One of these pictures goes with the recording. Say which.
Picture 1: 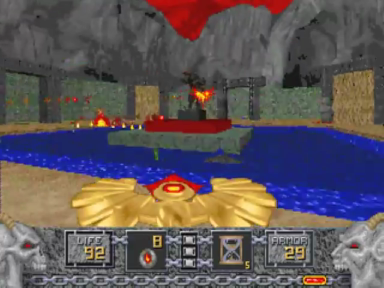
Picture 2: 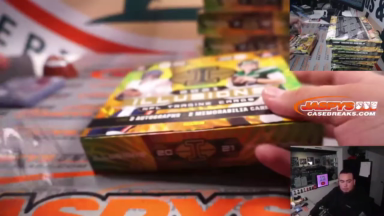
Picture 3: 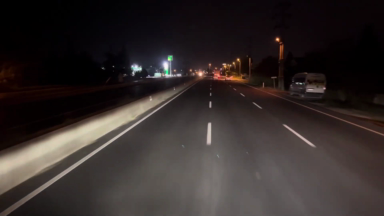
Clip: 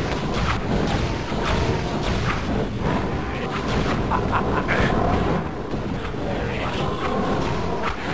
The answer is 1